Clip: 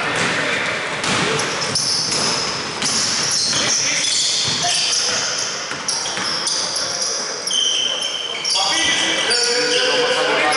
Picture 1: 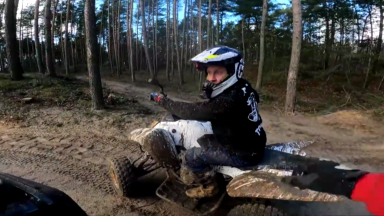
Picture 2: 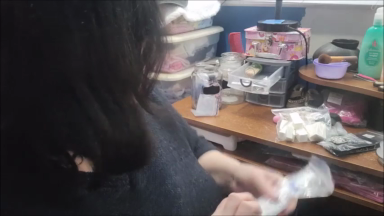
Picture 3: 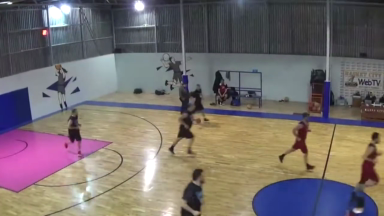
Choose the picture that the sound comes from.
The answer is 3